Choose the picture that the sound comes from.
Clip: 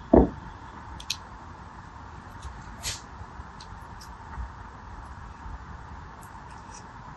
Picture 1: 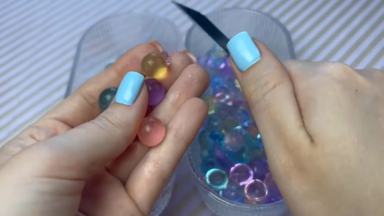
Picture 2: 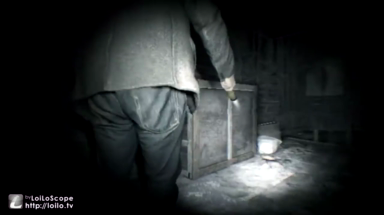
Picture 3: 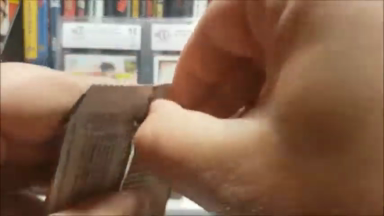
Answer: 1